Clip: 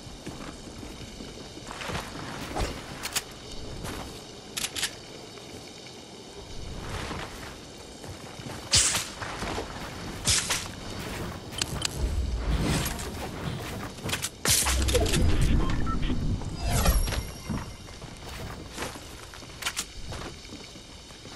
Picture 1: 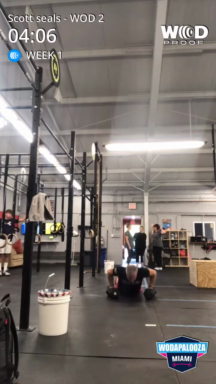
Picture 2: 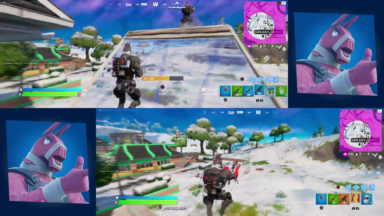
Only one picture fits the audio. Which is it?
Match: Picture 2